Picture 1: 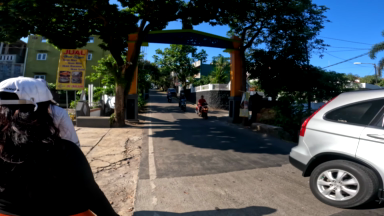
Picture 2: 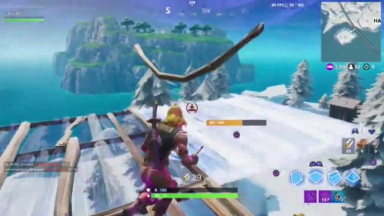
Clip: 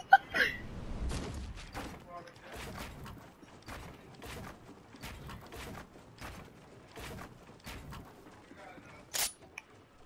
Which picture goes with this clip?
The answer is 2